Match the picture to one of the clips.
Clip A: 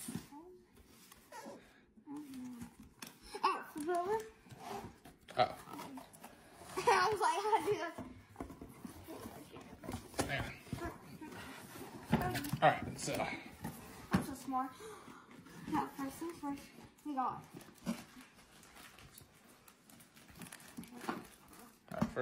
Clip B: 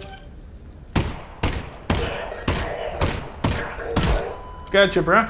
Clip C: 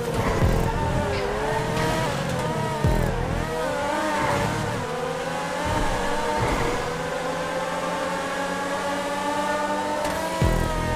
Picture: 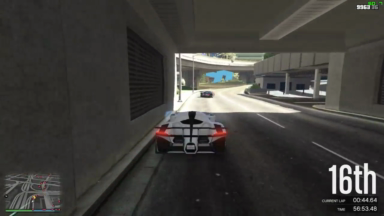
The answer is C